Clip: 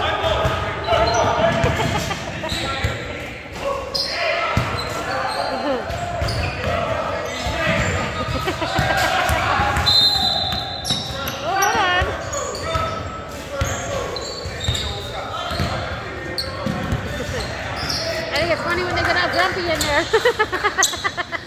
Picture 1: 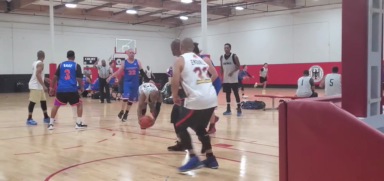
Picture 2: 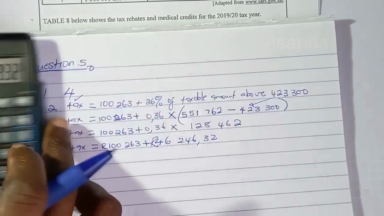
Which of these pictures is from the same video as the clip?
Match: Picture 1